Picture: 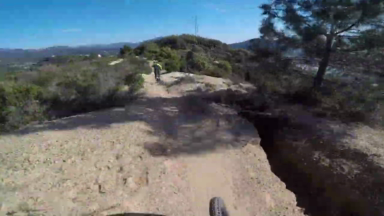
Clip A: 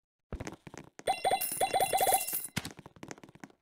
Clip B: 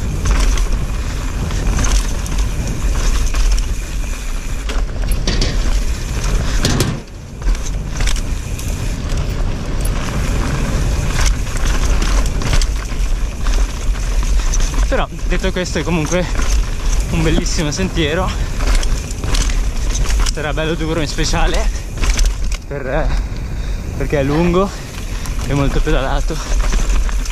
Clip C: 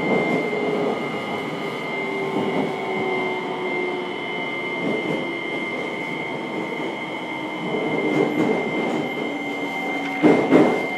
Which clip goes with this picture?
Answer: B